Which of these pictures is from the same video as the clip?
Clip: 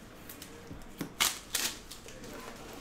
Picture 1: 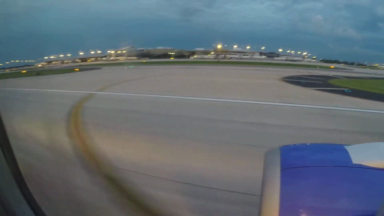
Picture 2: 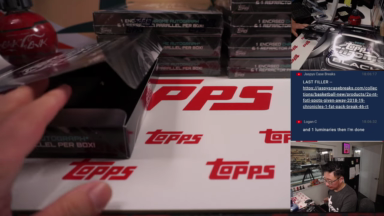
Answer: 2